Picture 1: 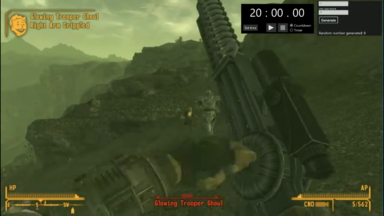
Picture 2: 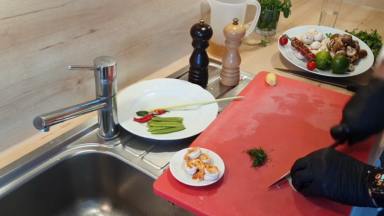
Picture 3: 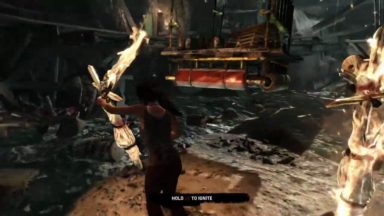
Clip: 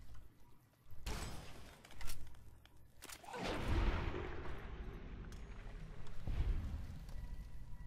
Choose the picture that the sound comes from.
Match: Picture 1